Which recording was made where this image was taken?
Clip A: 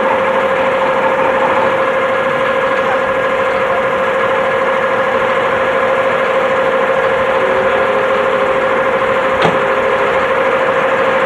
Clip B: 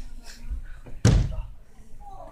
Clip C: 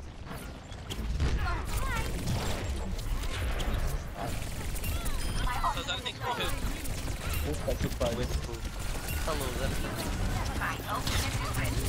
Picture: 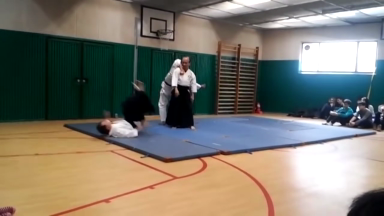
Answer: B